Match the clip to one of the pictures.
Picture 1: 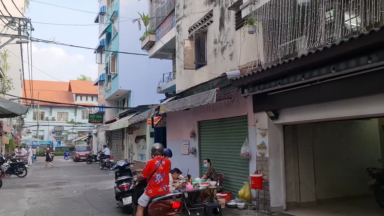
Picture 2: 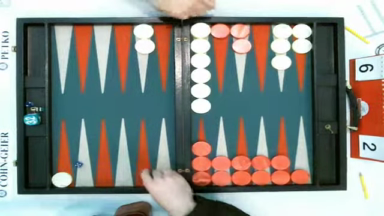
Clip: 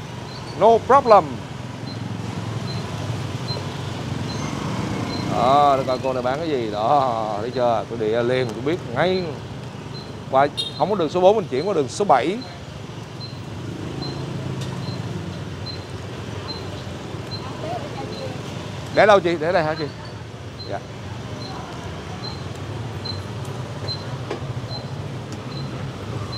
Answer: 1